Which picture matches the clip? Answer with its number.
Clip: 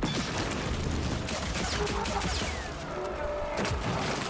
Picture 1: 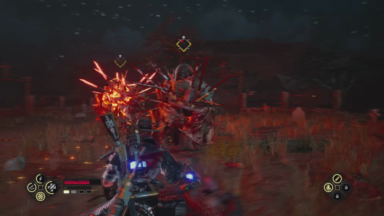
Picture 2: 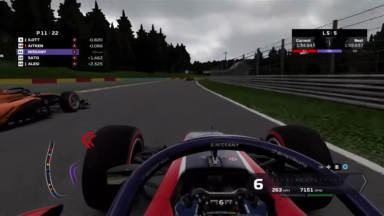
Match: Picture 1